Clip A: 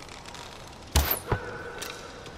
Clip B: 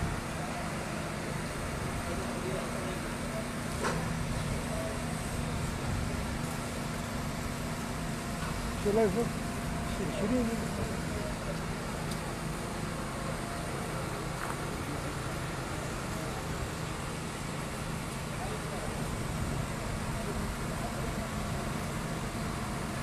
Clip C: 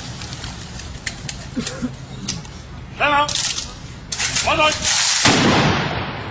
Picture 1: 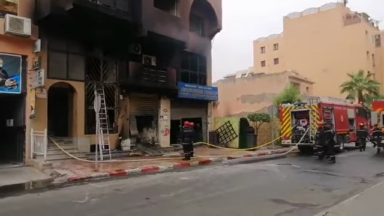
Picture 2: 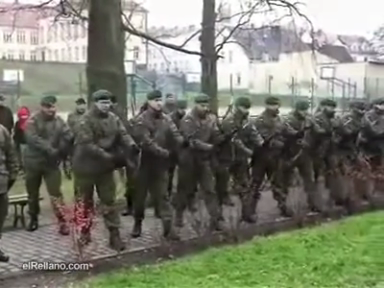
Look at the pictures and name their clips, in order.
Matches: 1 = B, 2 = C